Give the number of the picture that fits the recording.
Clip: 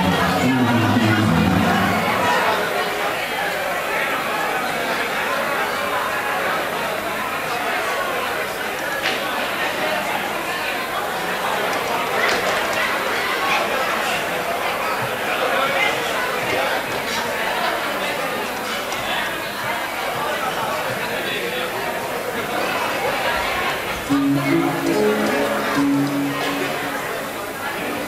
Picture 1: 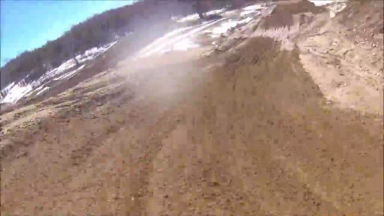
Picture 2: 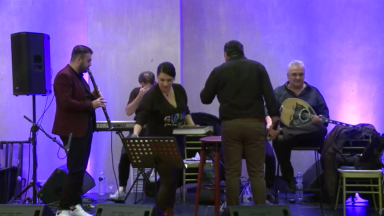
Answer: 2